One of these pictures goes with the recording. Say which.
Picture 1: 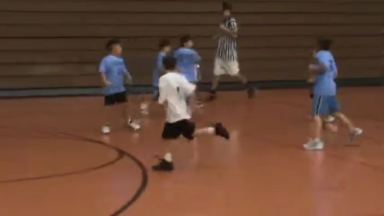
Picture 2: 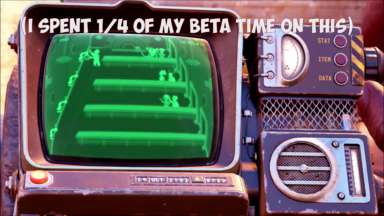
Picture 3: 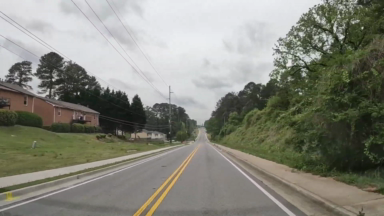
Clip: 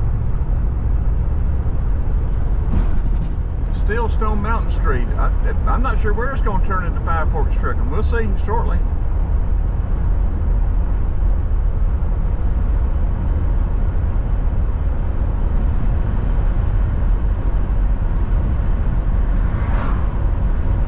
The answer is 3